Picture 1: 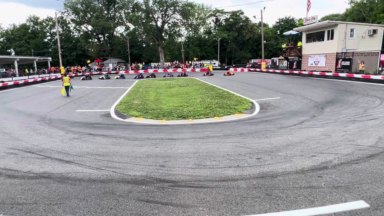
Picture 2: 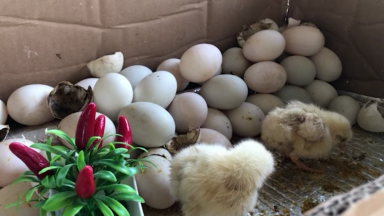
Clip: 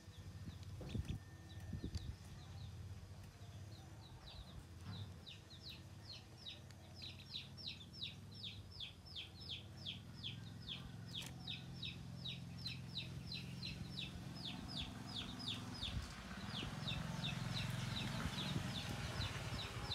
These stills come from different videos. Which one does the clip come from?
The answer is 2